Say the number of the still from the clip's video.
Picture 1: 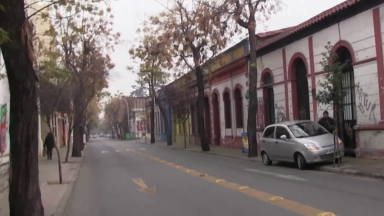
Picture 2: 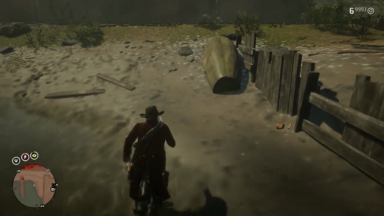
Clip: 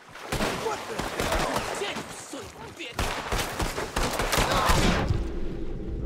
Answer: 2